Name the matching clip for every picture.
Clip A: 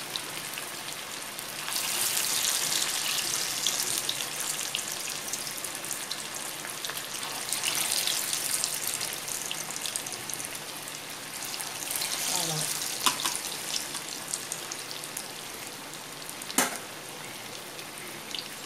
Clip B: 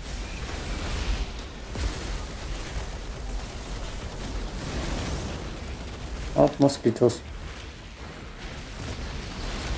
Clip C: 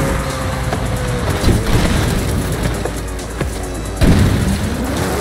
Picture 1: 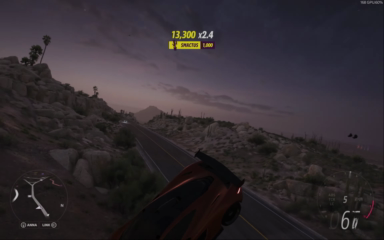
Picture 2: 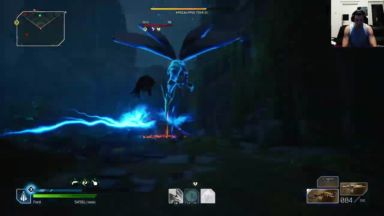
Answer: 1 C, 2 B